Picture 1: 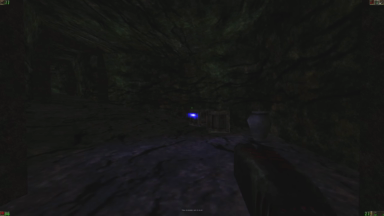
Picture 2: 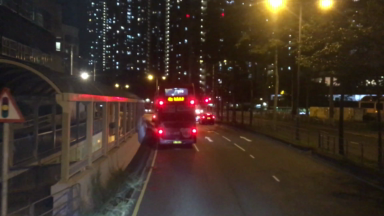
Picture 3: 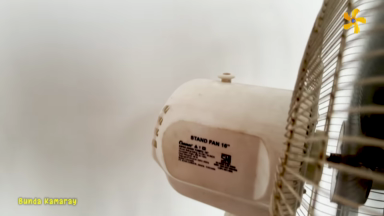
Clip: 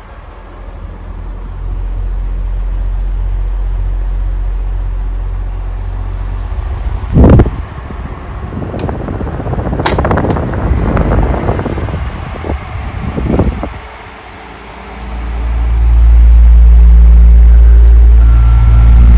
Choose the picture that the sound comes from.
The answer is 3